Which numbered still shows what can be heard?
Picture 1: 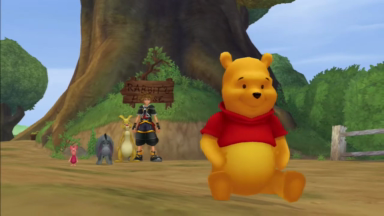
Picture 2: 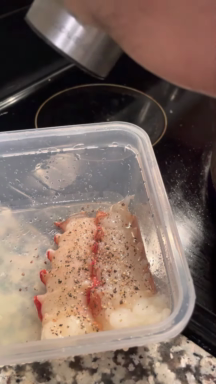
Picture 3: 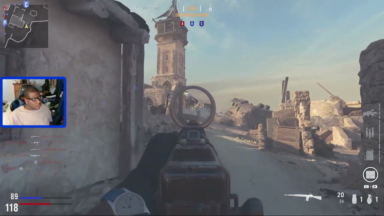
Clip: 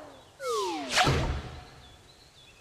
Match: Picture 1